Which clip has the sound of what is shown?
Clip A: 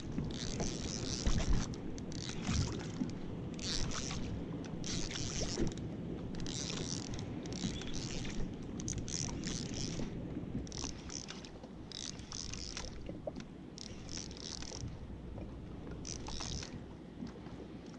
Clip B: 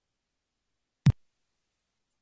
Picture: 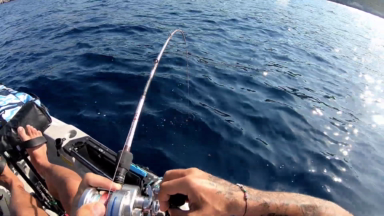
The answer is A